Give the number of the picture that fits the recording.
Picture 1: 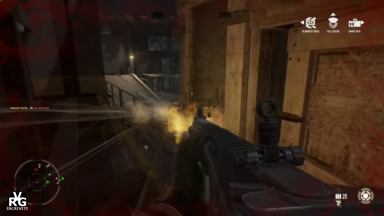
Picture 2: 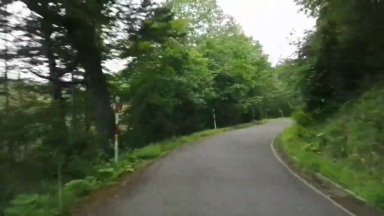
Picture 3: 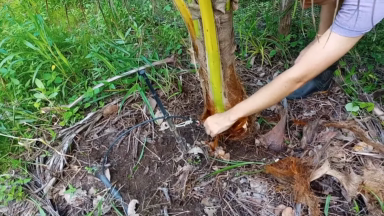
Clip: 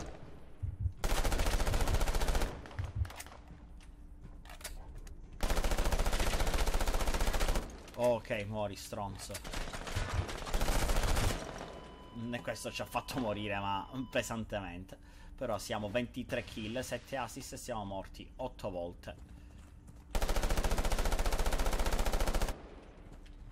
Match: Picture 1